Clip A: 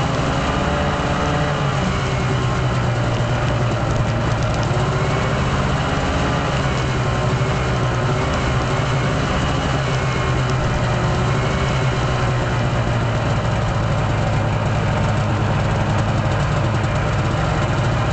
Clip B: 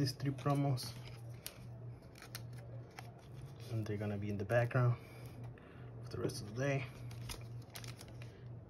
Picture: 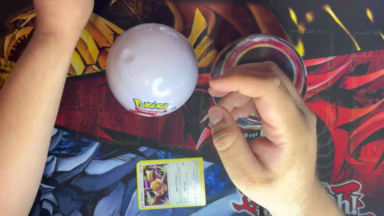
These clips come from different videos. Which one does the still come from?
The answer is B